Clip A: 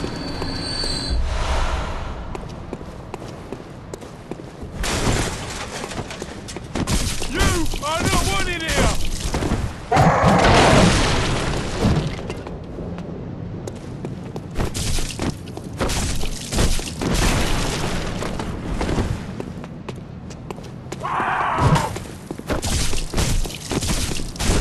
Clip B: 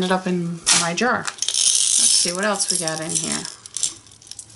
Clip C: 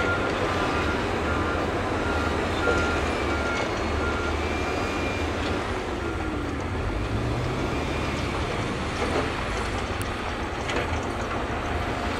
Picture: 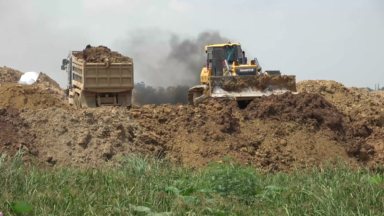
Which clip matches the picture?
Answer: C